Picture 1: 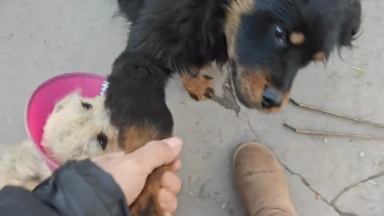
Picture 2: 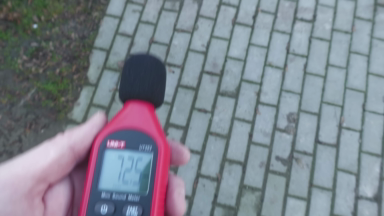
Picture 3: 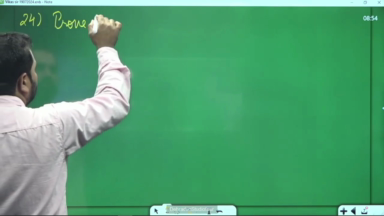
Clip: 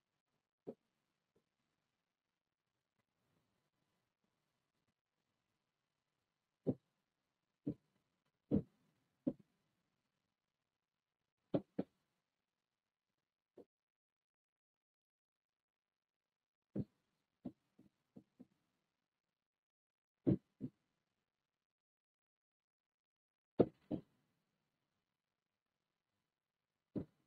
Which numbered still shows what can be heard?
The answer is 3